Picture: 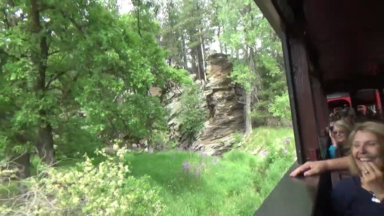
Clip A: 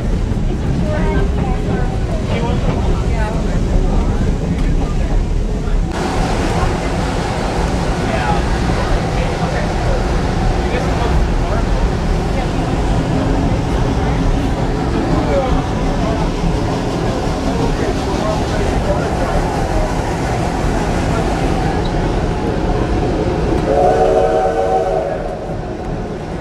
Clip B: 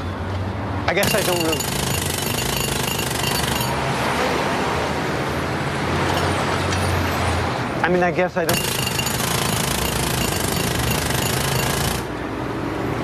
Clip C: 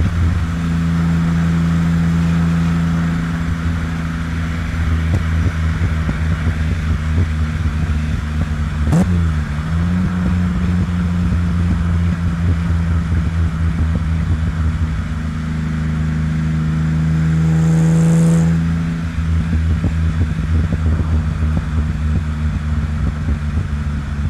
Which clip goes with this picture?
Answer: A